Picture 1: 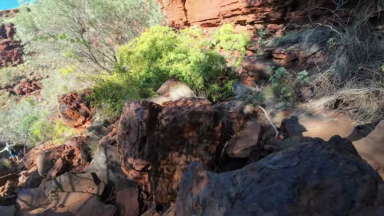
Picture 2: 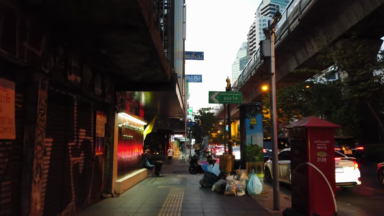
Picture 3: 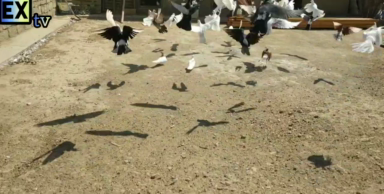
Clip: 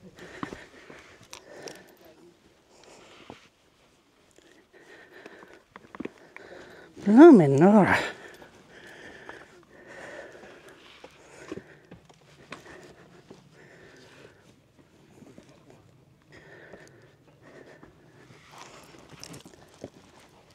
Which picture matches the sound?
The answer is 1